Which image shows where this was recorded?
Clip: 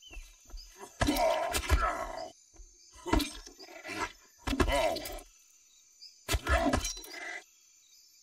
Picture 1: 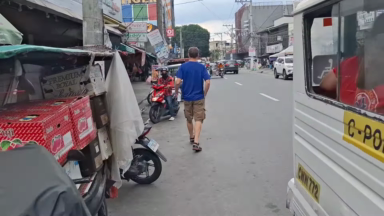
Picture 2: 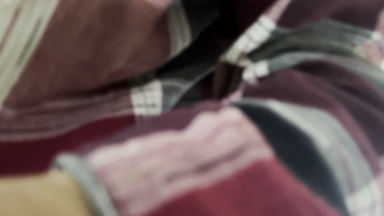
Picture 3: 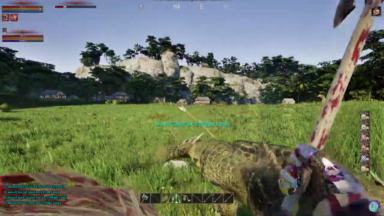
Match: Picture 3